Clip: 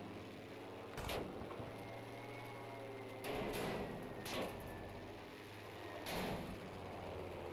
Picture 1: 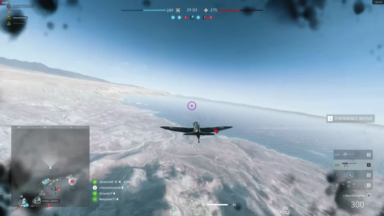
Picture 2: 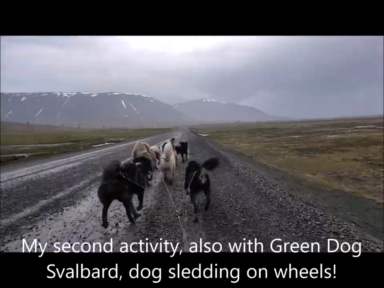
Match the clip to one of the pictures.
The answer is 1